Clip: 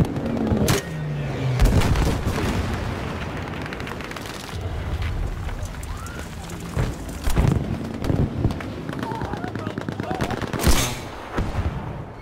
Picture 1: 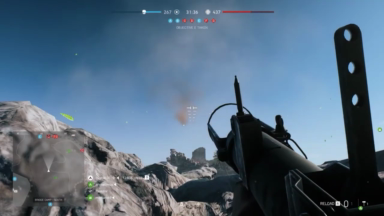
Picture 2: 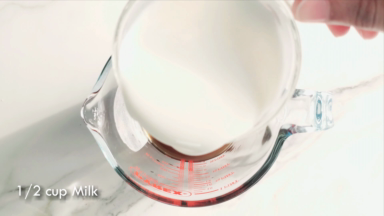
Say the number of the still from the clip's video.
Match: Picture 1